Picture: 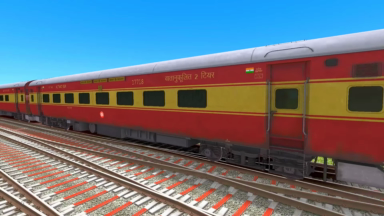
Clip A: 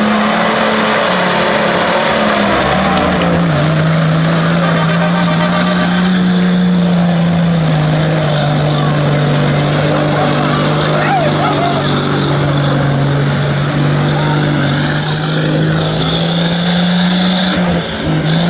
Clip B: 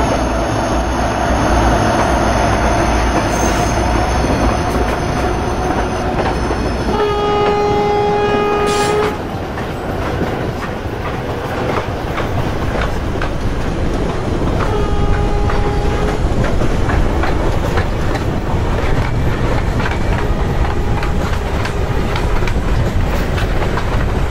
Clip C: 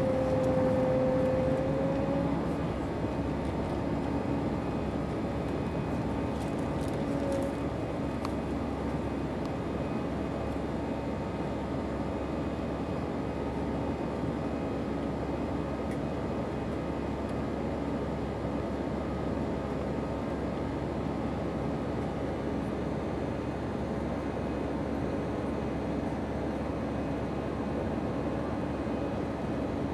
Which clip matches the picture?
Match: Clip B